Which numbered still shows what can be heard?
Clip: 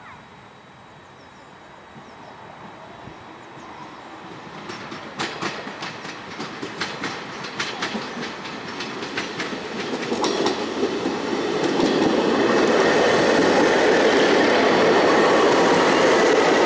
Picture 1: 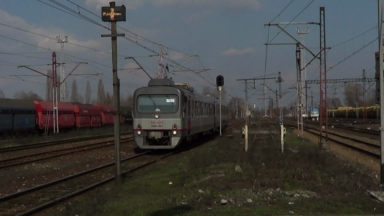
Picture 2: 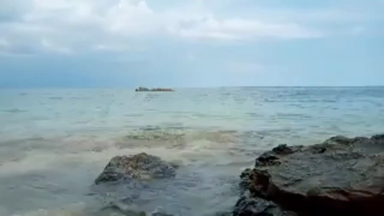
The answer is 1